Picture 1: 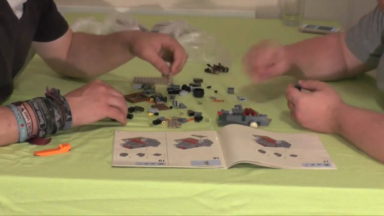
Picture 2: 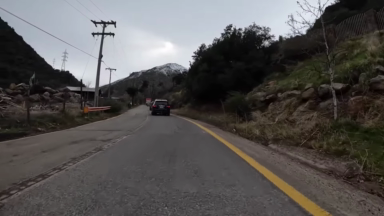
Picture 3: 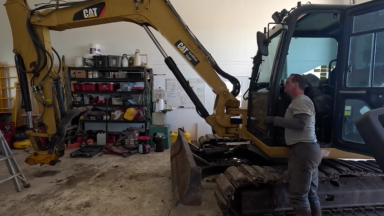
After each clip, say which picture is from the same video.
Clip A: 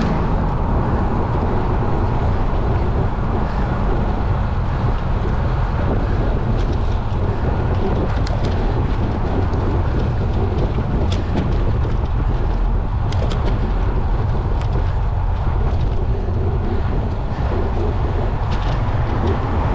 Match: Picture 2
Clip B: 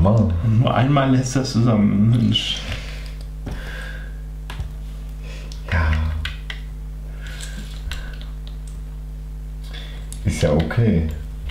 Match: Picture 1